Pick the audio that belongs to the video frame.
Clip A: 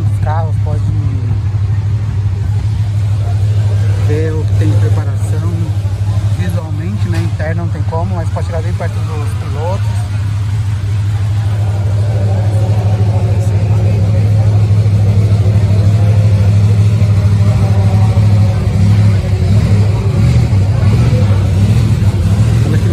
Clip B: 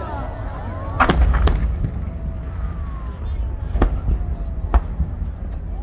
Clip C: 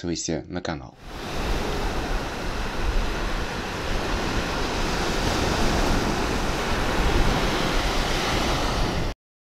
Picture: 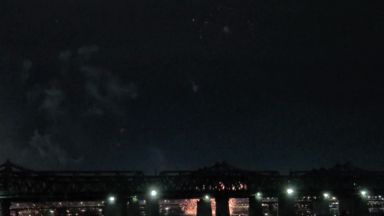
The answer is B